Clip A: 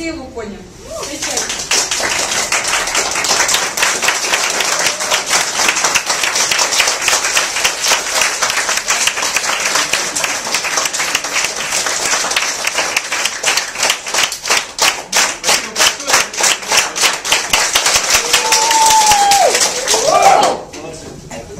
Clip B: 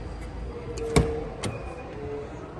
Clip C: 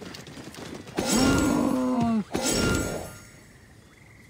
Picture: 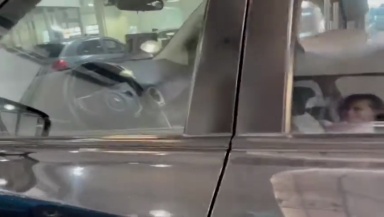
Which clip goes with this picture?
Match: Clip B